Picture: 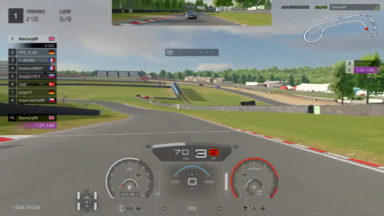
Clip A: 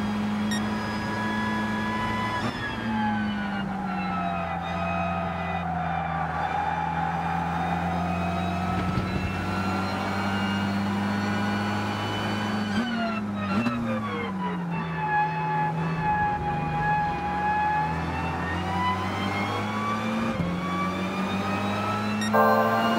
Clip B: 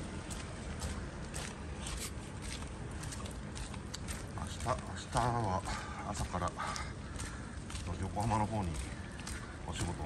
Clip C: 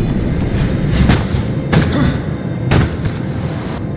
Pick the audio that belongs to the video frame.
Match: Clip A